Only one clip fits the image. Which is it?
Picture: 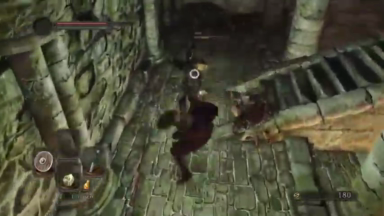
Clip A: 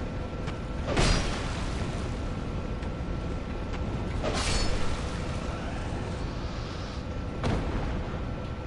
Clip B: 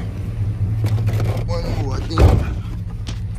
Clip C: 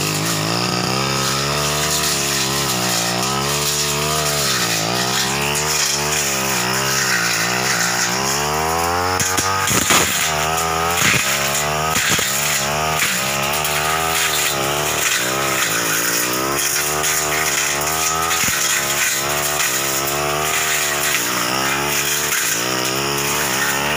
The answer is A